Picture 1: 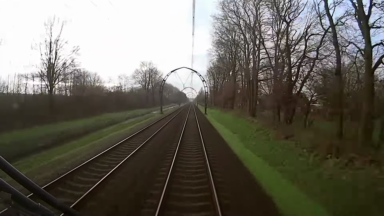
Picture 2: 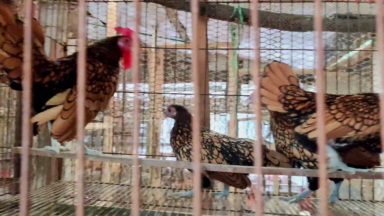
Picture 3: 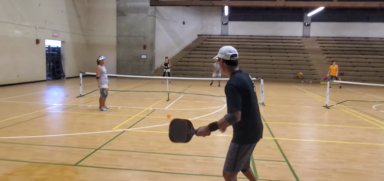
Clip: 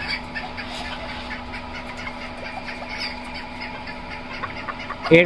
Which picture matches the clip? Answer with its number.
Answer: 2